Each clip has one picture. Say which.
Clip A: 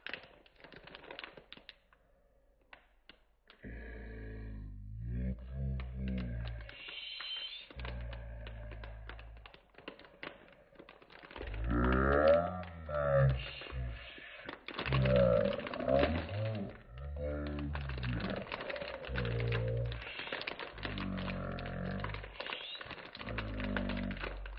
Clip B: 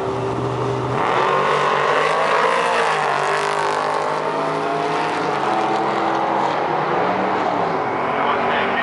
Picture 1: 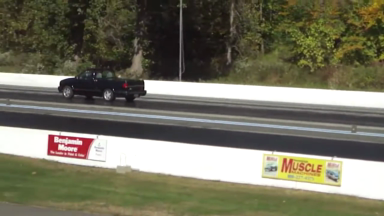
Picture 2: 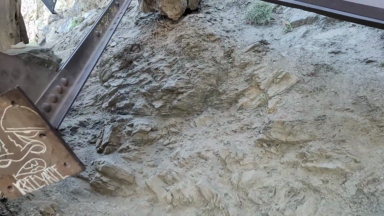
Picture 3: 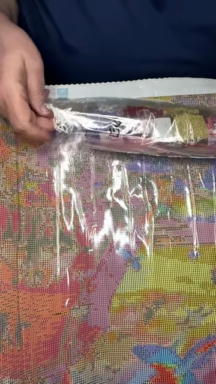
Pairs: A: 3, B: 1